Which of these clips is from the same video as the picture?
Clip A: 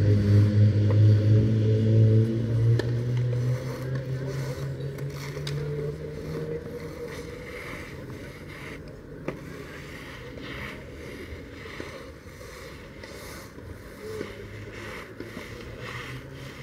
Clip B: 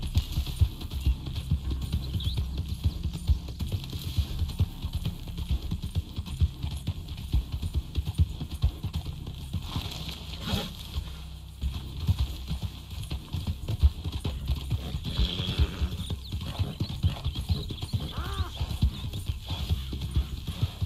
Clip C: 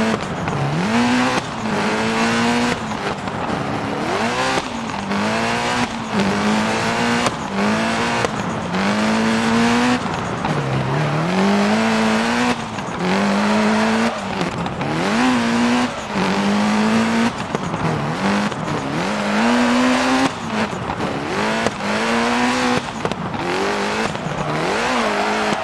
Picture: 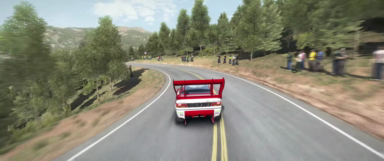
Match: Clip C